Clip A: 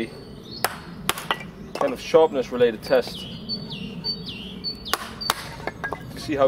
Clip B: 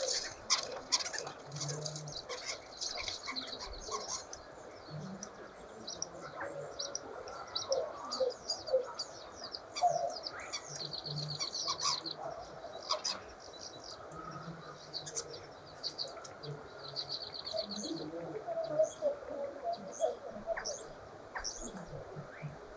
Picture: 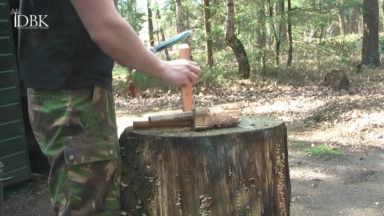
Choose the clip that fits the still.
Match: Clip A